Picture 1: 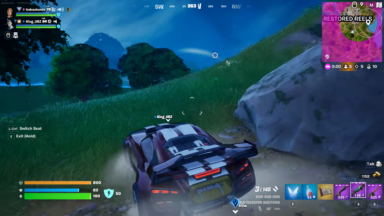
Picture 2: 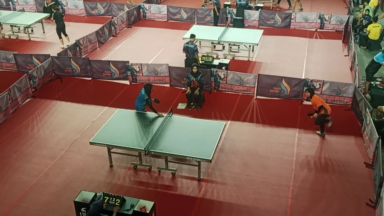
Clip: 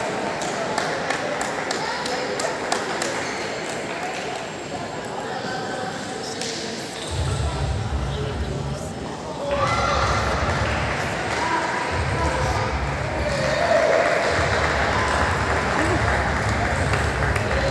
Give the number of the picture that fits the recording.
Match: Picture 2